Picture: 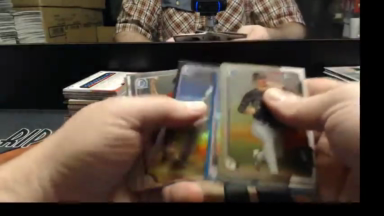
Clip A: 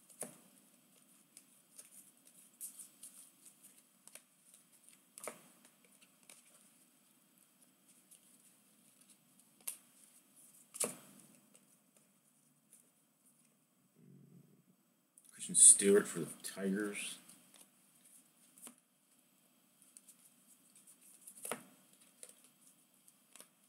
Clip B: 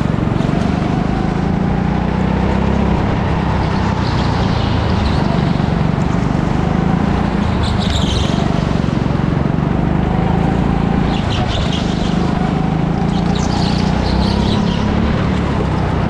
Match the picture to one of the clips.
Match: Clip A